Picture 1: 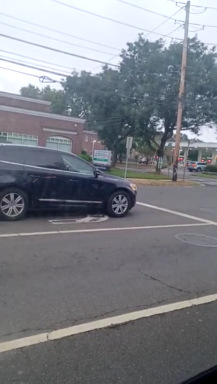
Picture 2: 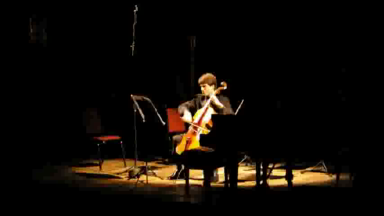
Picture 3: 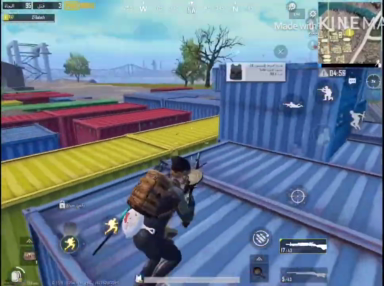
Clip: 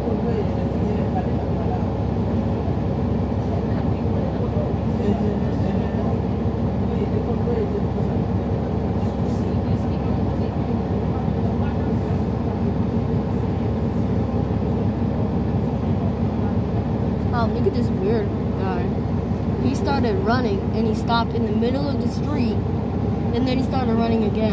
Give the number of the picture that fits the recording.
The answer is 1